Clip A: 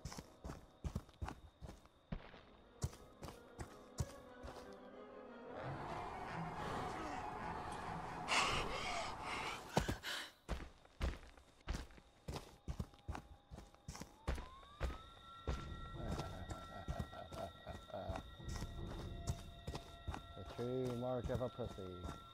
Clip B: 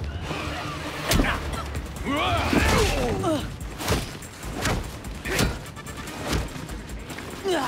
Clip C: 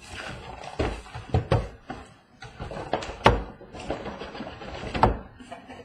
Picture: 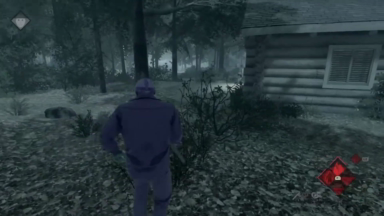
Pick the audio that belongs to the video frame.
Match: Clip A